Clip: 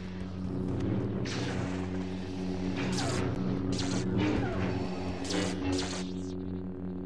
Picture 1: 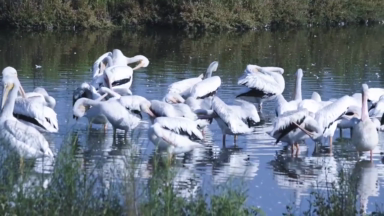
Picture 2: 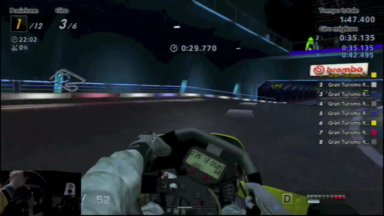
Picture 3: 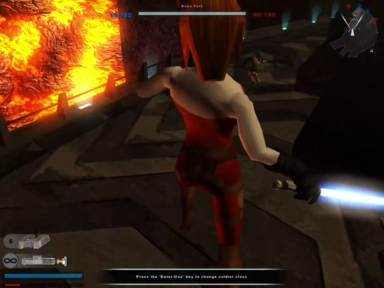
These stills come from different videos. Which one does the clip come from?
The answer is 3